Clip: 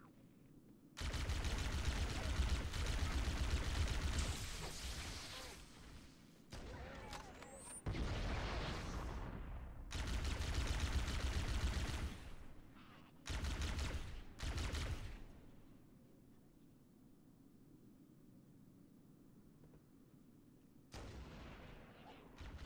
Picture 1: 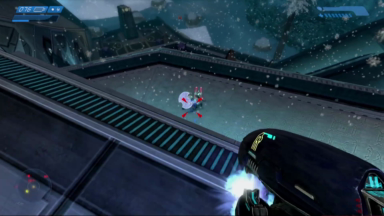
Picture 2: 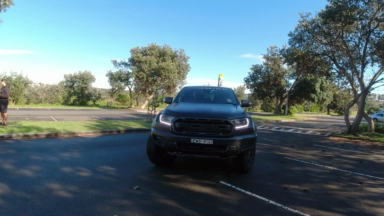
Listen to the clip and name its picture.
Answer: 1